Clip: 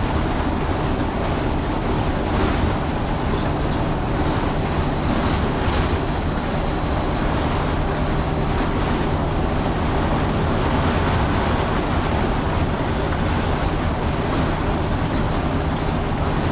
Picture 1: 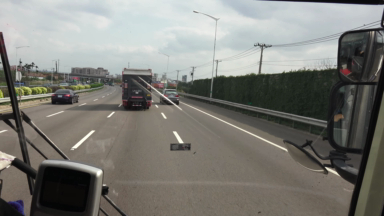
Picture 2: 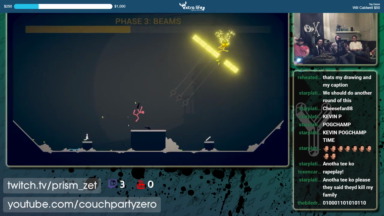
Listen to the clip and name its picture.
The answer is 1